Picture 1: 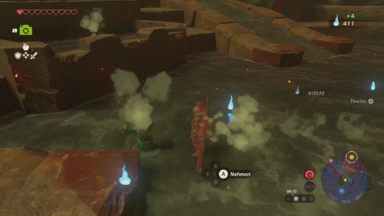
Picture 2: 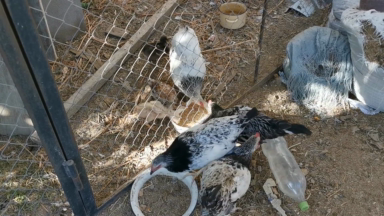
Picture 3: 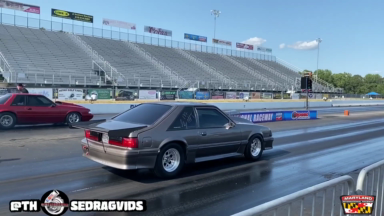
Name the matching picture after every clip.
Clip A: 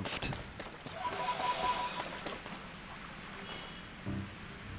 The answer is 1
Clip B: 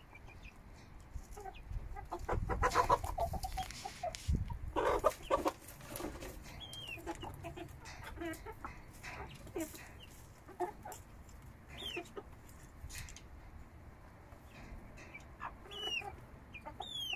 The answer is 2